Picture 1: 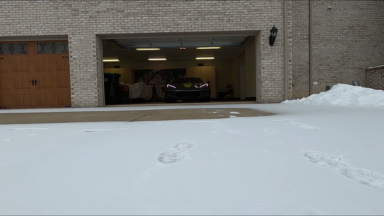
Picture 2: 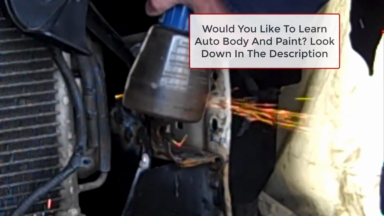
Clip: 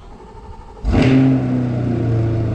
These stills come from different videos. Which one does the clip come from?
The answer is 1